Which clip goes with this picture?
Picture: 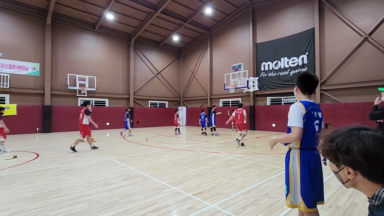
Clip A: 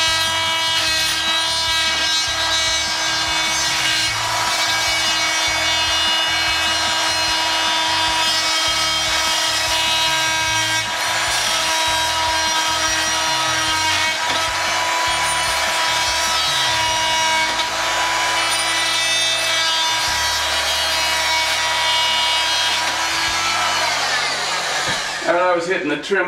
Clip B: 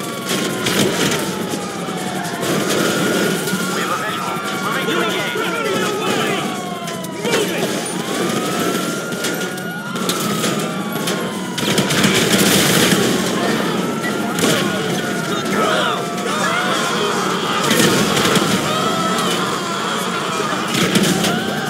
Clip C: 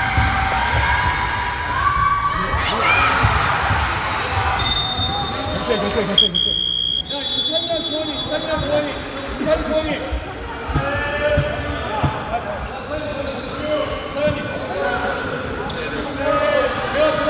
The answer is C